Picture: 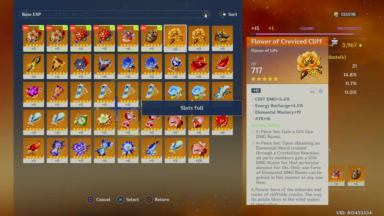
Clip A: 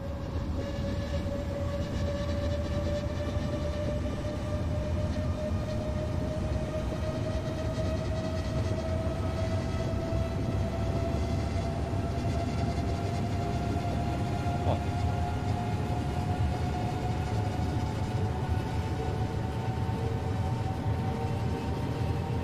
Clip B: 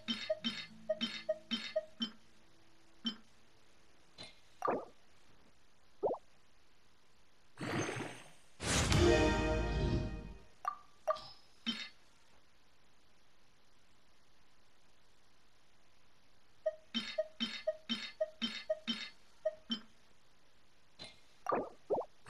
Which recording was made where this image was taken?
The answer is B